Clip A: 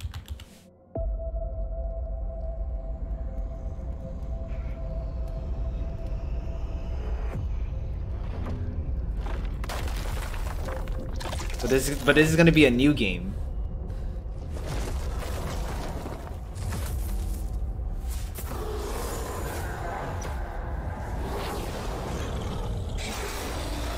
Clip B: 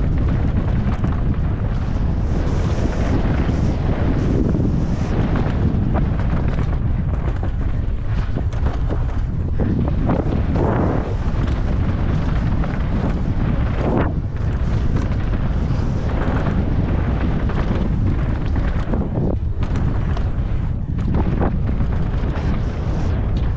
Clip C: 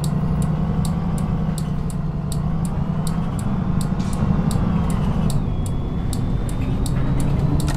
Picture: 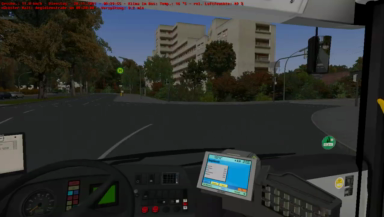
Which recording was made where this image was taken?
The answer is C